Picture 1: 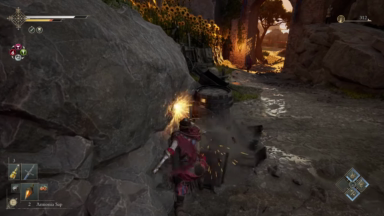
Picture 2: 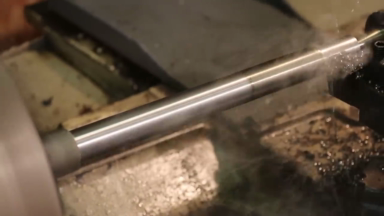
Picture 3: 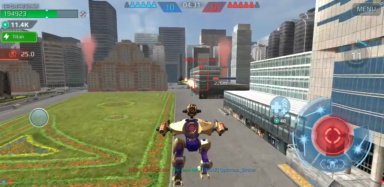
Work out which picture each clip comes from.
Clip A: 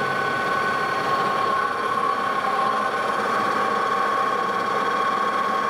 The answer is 2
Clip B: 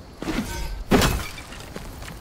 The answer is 1